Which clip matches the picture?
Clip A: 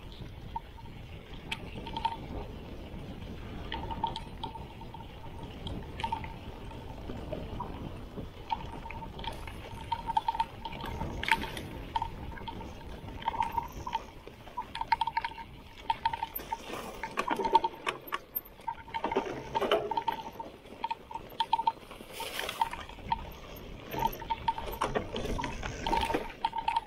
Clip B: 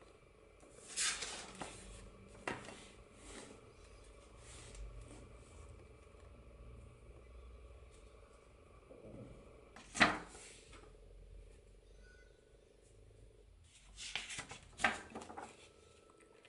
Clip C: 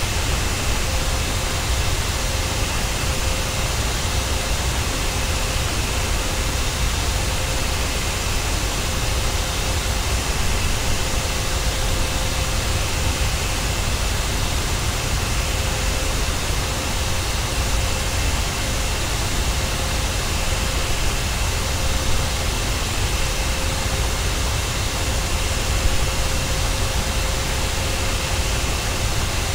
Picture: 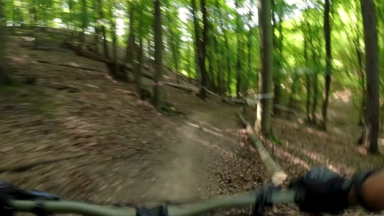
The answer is A